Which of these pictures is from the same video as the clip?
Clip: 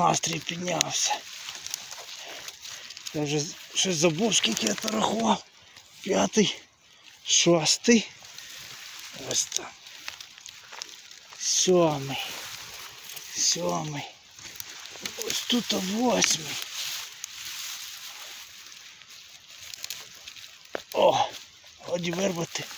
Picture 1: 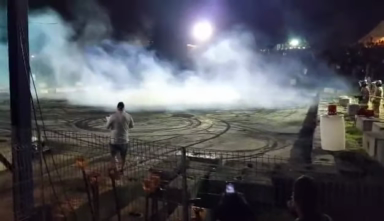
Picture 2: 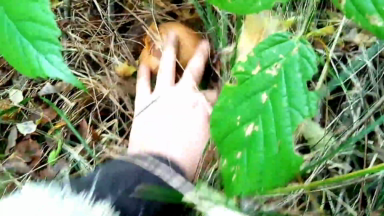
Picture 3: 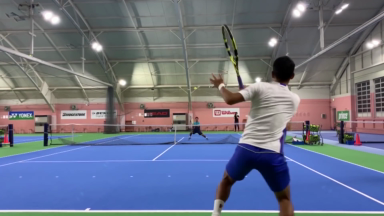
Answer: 2